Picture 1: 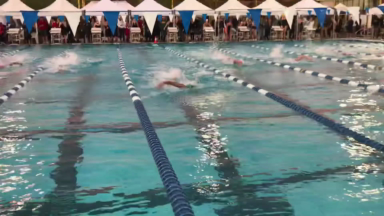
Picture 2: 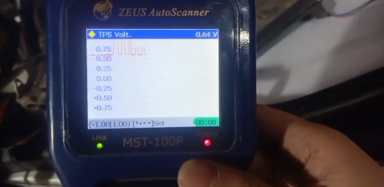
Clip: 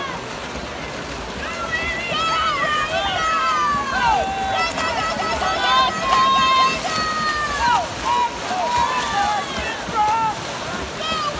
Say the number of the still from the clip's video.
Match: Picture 1